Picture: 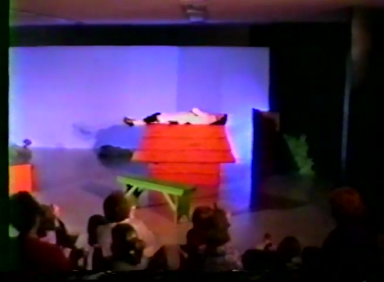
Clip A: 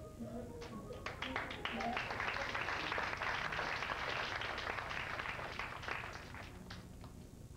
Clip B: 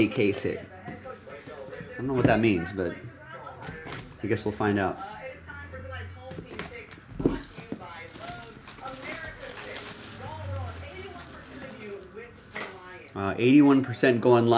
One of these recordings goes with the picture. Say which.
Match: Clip A